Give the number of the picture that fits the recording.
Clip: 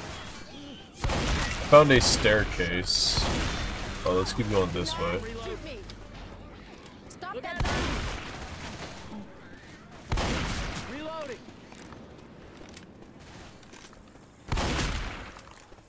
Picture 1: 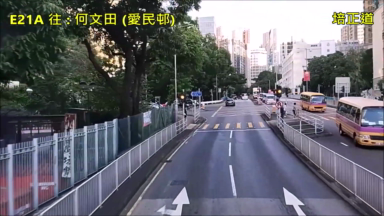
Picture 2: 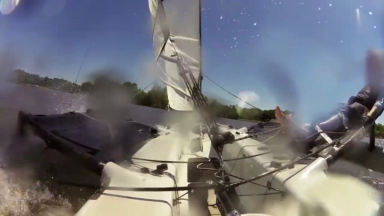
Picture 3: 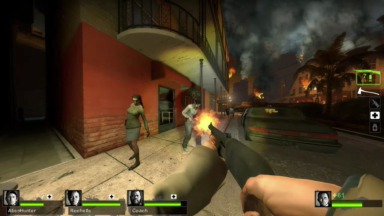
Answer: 3